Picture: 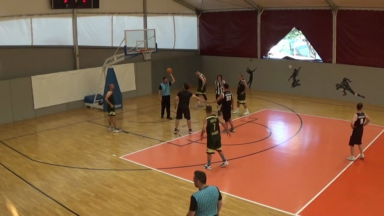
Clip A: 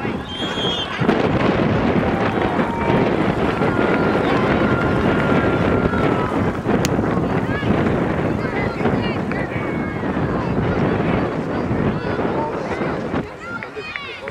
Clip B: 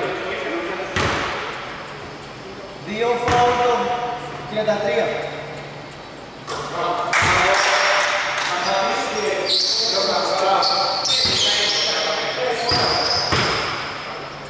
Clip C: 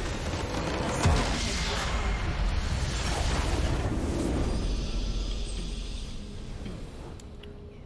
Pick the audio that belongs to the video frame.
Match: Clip B